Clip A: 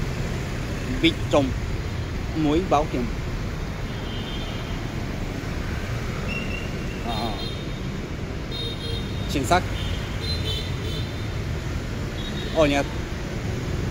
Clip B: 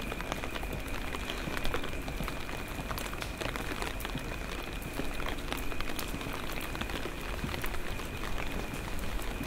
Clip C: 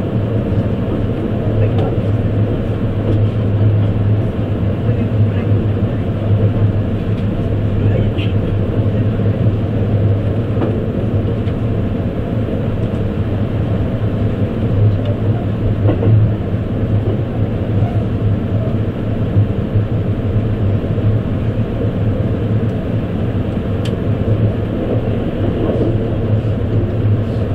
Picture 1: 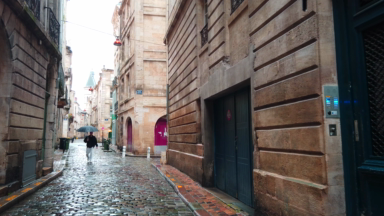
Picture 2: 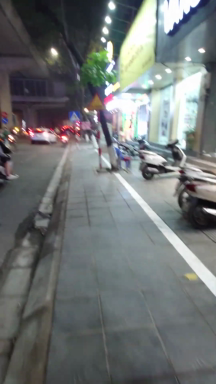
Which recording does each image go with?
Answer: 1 B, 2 A